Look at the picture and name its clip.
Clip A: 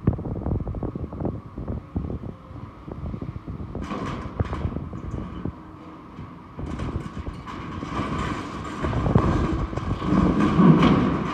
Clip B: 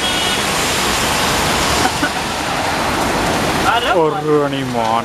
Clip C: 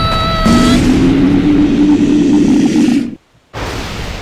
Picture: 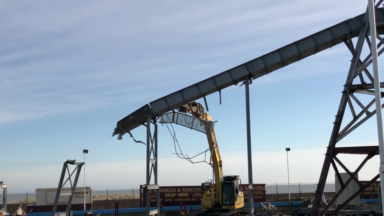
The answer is A